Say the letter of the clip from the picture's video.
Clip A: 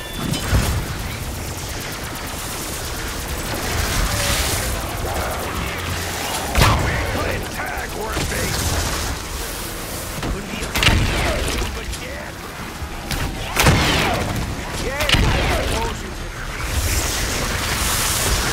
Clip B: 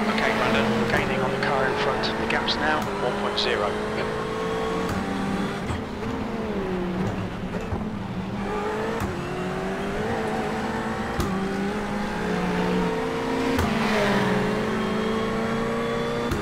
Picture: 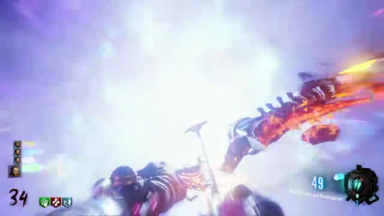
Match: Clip A